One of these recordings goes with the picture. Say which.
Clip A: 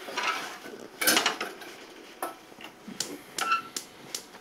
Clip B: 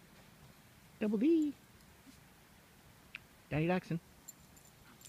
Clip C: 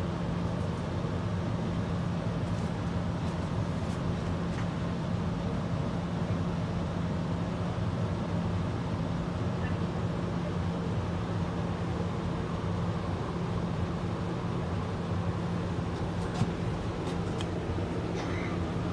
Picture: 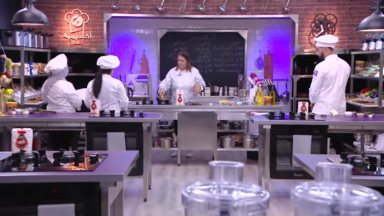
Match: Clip A